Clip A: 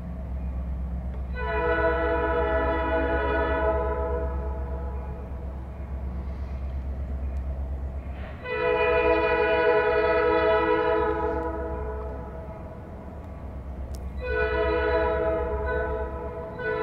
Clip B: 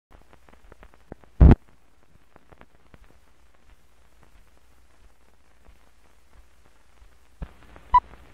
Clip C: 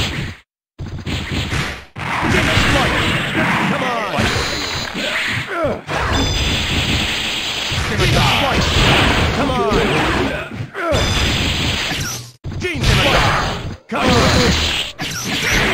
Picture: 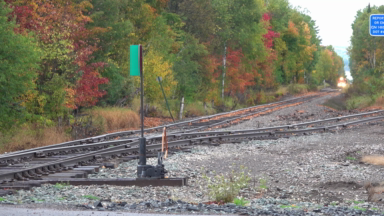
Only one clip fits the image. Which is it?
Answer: A